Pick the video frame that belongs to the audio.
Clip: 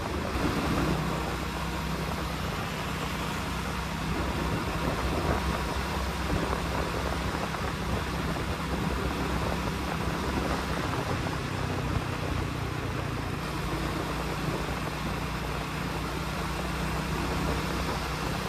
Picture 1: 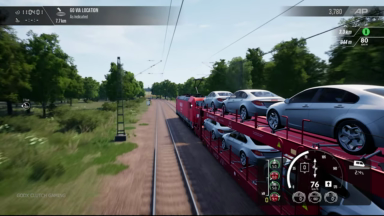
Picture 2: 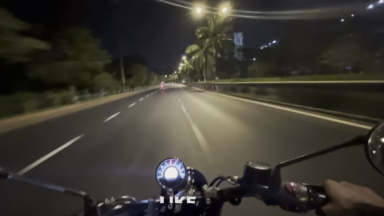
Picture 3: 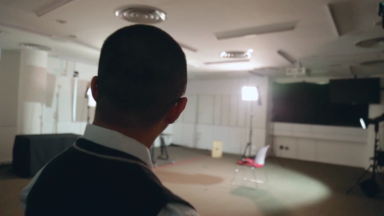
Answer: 2